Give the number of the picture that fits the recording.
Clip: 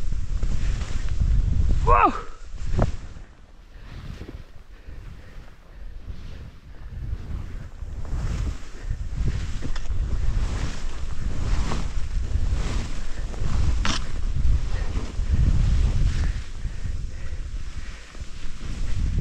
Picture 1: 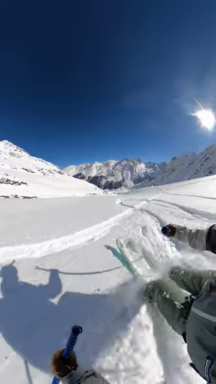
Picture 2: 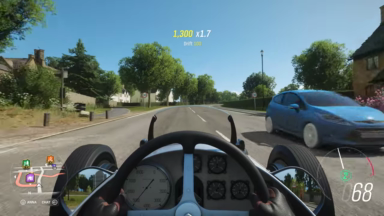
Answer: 1